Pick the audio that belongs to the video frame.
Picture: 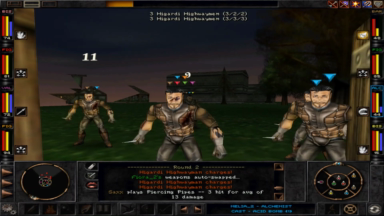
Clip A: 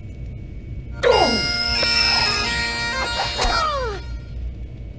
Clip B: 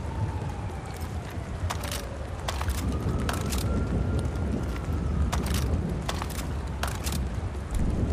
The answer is A